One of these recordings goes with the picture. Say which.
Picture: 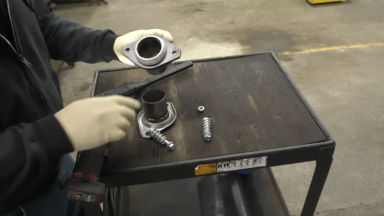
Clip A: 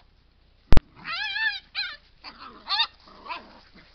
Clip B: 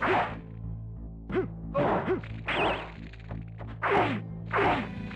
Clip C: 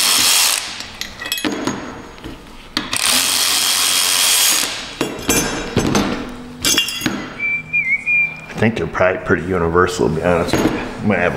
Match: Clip C